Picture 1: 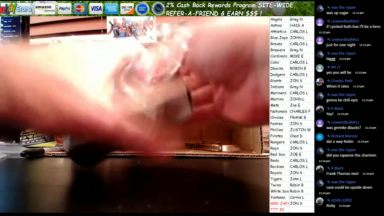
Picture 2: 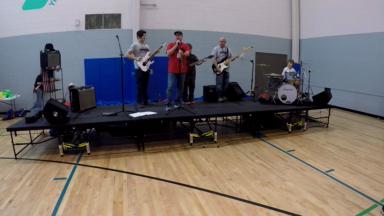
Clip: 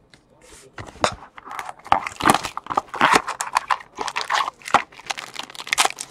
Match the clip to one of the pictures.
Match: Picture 1